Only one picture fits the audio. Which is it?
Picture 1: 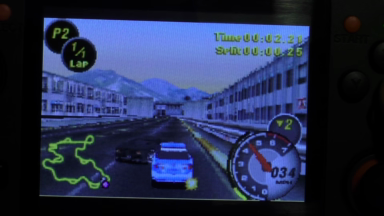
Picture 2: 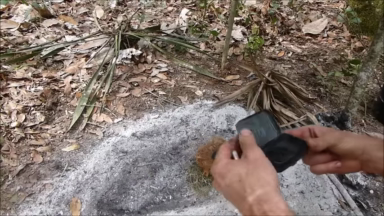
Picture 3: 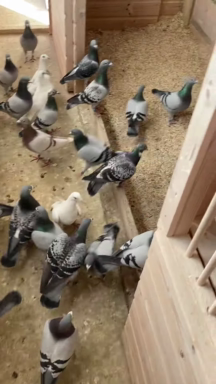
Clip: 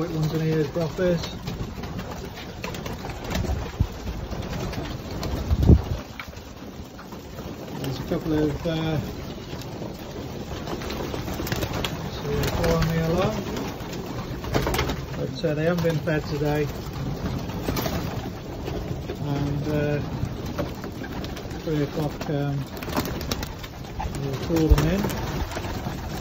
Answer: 3